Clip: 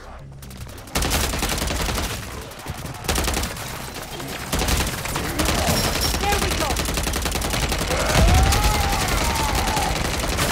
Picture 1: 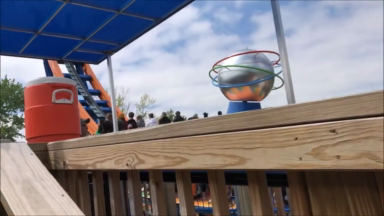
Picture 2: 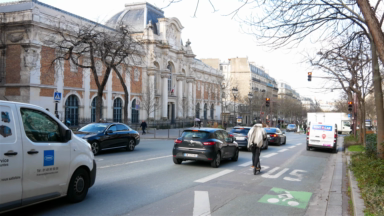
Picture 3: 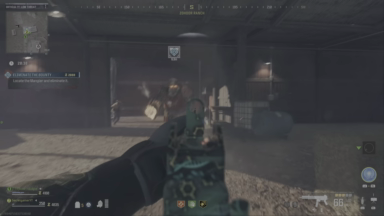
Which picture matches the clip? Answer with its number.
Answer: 3